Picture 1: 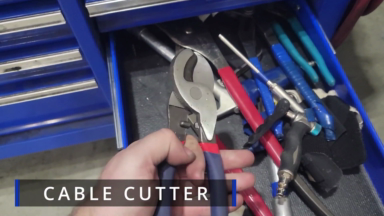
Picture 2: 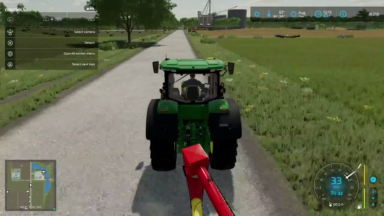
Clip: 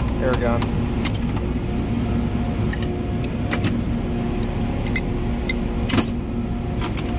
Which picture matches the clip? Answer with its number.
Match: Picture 1